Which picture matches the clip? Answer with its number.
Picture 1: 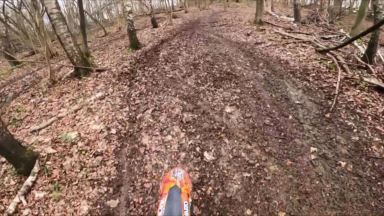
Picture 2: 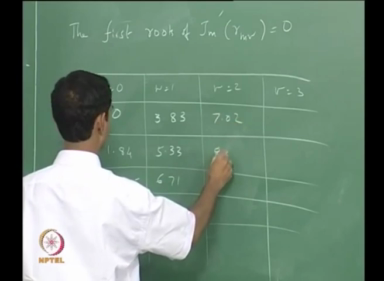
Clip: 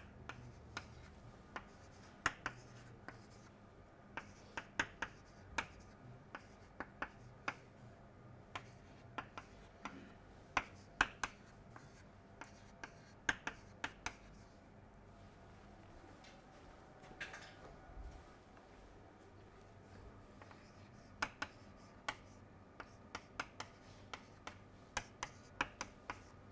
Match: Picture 2